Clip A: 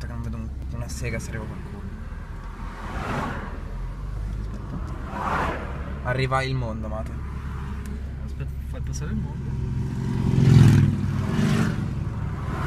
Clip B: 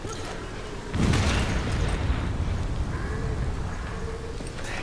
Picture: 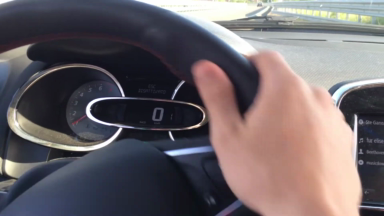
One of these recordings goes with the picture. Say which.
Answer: A